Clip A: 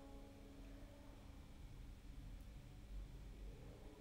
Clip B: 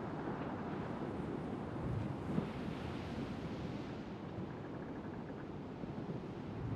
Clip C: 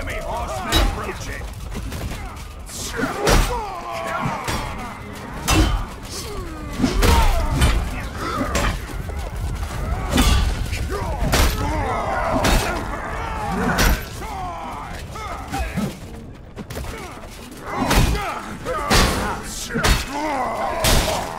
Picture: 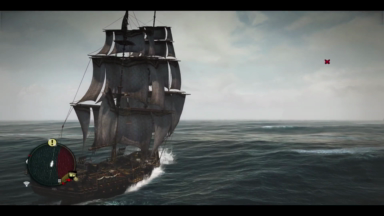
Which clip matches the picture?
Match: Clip B